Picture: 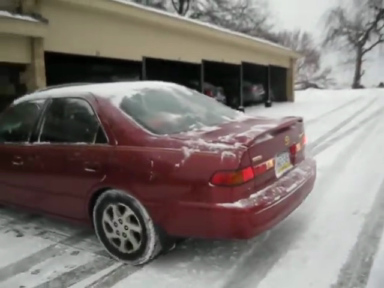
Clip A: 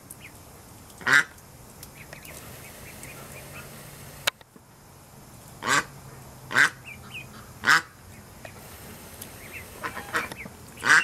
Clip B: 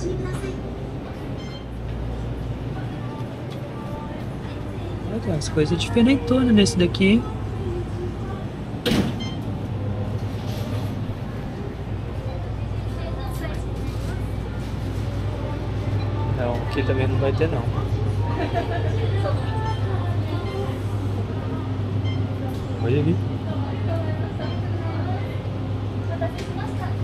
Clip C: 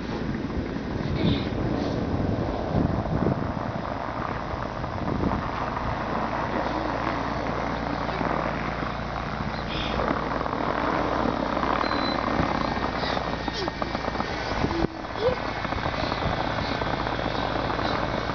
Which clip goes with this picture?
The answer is C